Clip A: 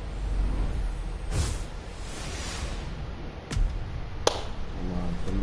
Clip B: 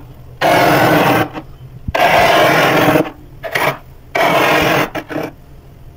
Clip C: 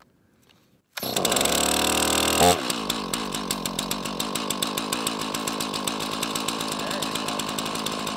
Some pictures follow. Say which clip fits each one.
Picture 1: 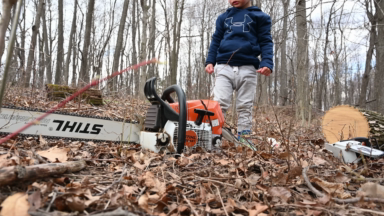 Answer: C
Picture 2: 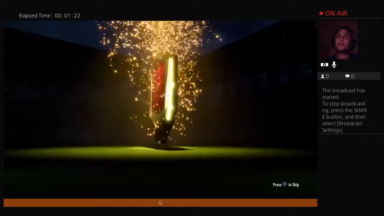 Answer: A